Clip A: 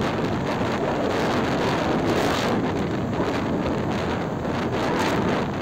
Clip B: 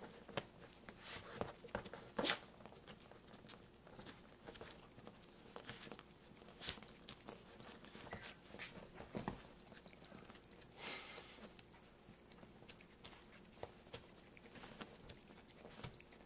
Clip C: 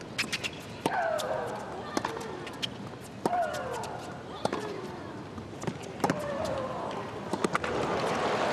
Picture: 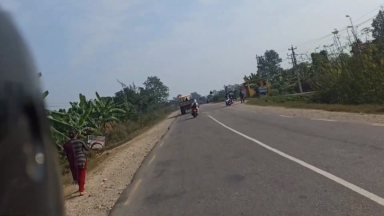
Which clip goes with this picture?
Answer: A